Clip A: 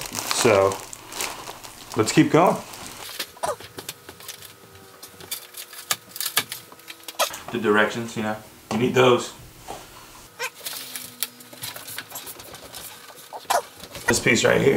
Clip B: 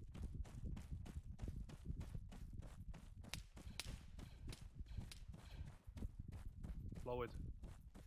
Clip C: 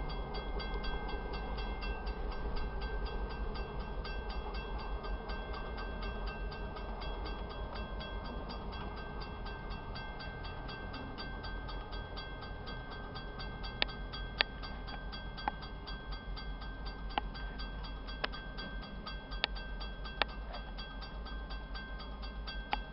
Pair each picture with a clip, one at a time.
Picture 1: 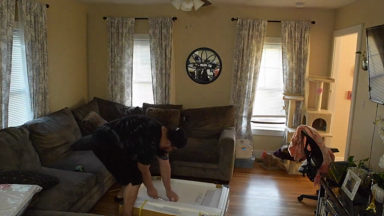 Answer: A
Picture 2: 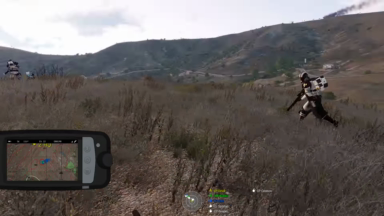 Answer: B